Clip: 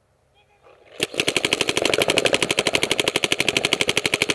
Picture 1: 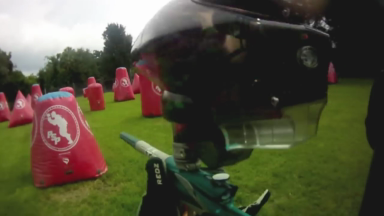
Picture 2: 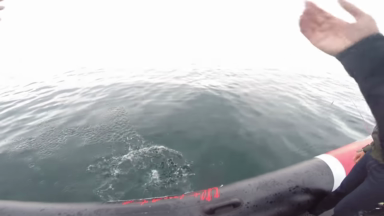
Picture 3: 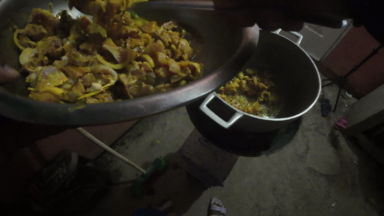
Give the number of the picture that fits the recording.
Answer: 1